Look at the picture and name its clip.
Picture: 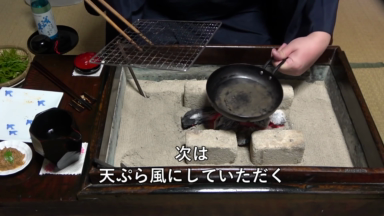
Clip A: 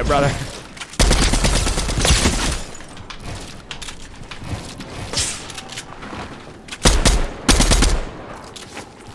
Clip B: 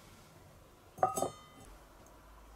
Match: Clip B